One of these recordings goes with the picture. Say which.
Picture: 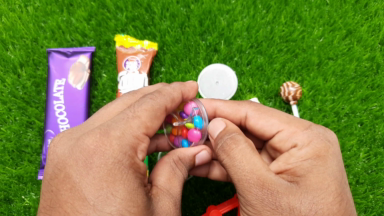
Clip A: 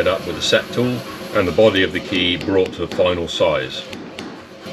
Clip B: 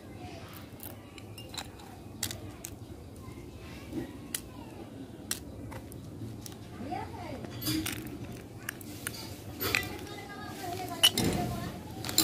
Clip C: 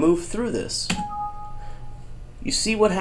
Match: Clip B